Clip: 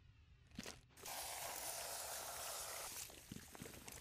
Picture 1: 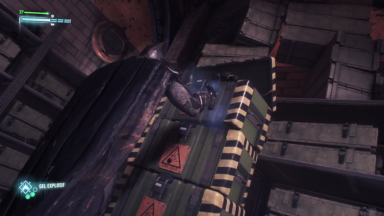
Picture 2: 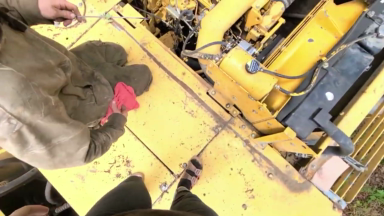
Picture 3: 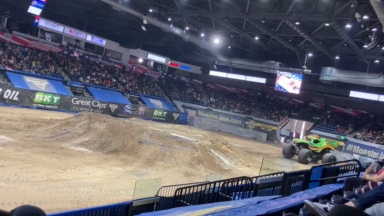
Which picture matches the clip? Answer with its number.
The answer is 1